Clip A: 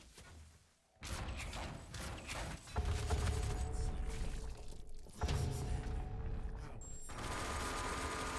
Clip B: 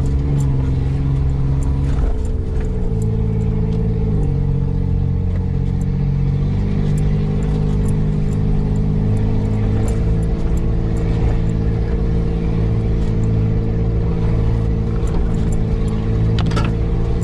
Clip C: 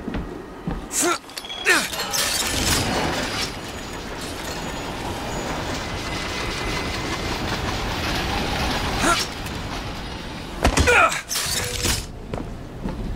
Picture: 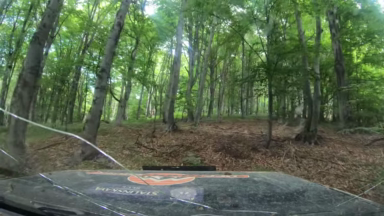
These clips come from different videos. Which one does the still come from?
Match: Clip B